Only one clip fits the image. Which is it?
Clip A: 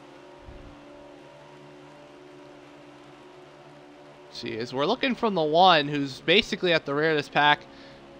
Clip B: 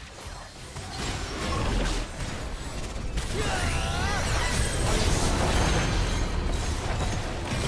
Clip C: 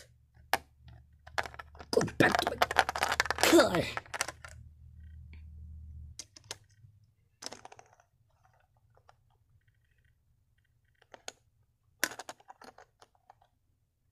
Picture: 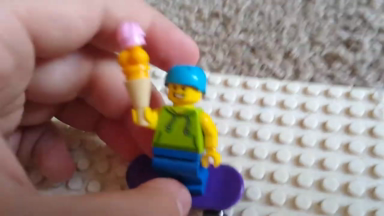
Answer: C